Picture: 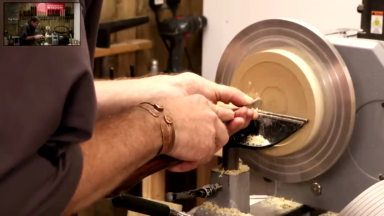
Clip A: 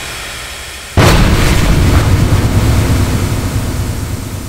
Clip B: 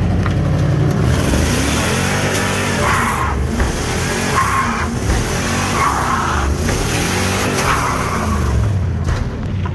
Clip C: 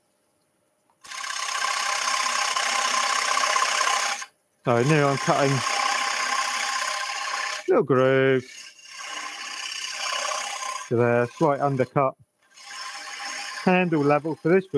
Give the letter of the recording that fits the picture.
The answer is C